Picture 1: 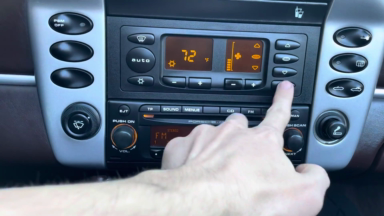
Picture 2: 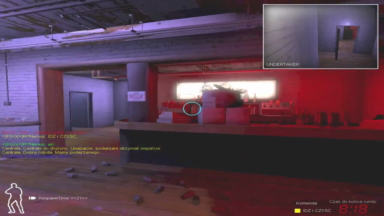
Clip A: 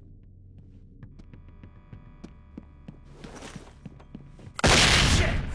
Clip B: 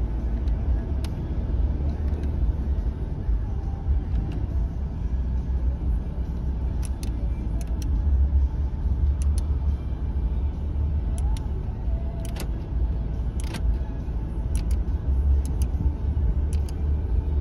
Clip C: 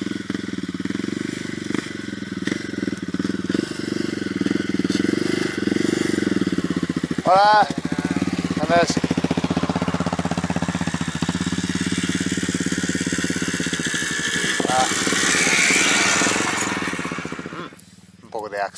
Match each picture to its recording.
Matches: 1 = B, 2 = A